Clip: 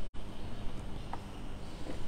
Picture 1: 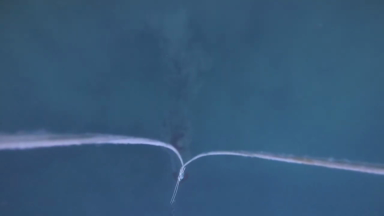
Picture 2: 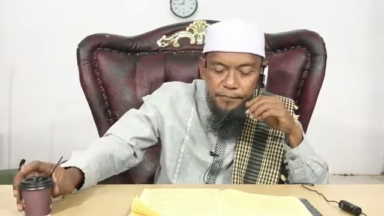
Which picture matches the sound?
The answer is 2